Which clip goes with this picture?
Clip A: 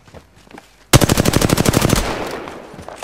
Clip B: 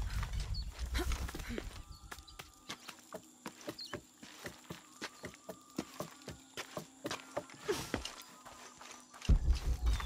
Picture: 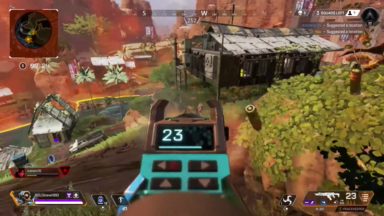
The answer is A